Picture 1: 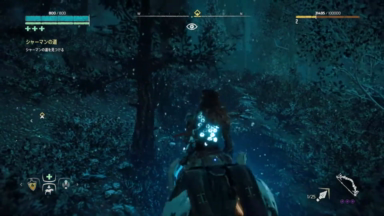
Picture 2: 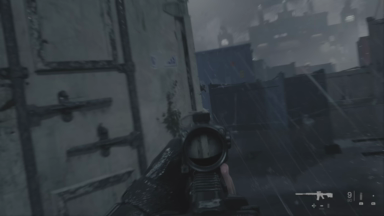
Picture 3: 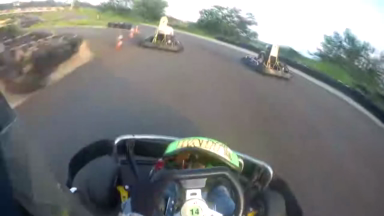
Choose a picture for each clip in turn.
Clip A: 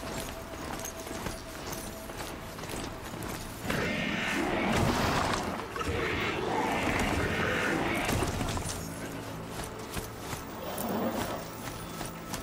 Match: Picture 1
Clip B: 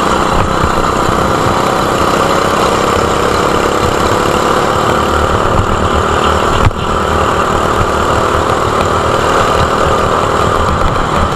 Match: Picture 3